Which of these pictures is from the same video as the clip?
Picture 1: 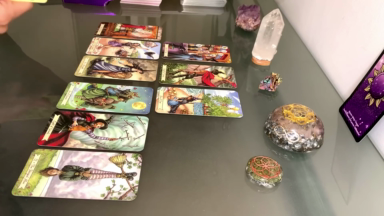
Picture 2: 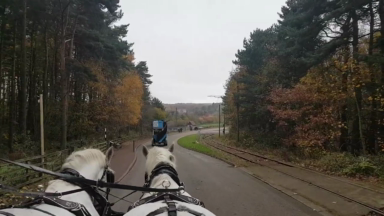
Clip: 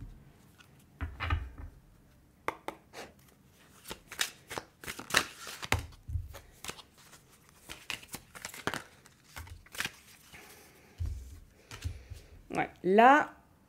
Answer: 1